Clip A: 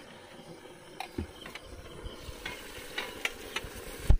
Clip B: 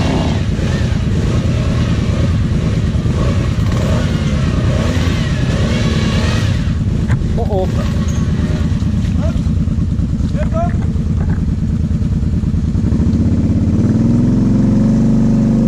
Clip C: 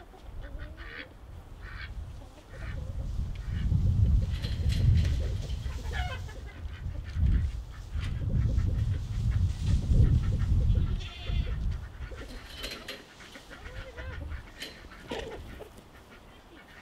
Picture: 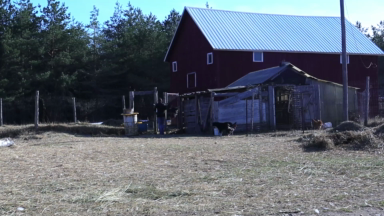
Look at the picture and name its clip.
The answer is C